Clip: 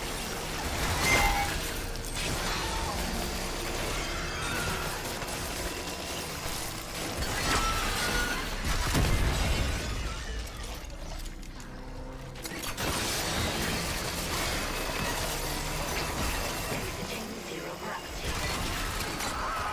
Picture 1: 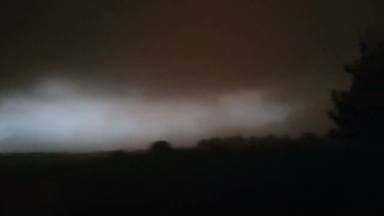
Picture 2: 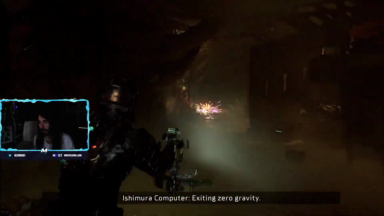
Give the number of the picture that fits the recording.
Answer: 2